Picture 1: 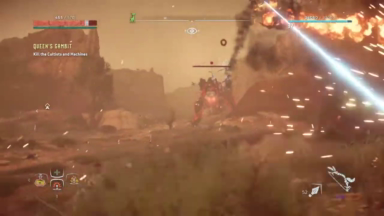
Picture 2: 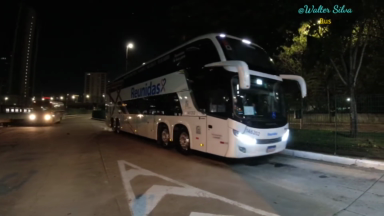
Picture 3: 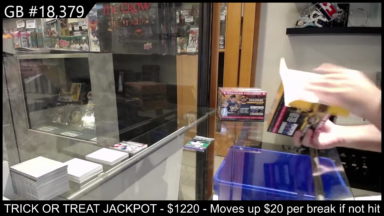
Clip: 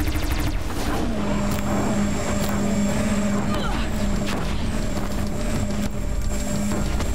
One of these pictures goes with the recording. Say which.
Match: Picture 1